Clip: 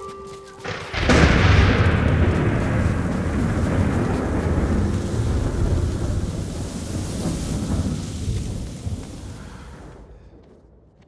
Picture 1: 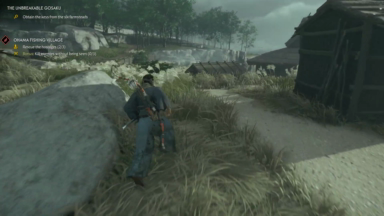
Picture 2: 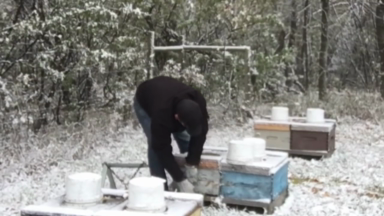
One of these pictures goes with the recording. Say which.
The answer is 1